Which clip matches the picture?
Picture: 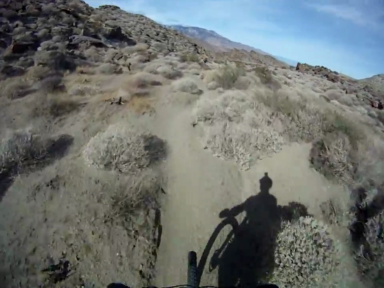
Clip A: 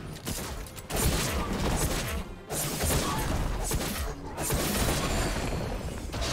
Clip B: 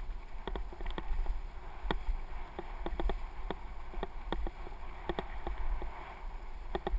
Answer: B